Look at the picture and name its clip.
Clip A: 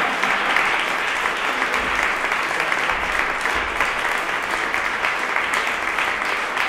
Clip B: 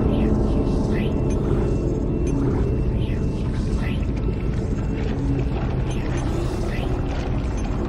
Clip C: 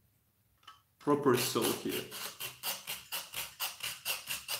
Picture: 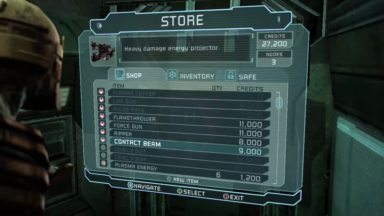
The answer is B